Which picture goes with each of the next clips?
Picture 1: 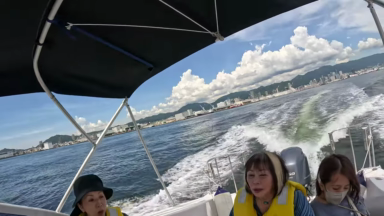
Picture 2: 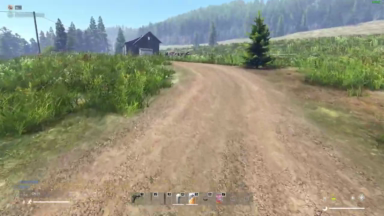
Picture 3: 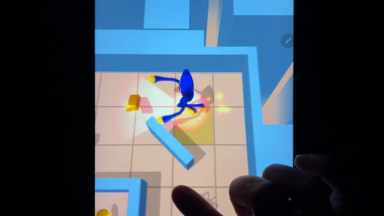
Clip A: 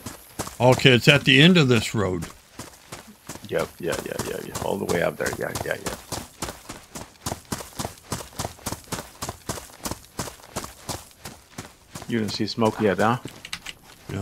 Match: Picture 2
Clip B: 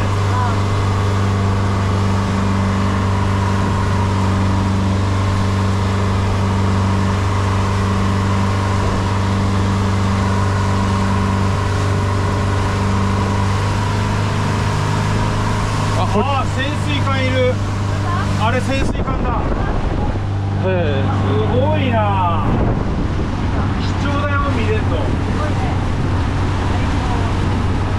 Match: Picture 1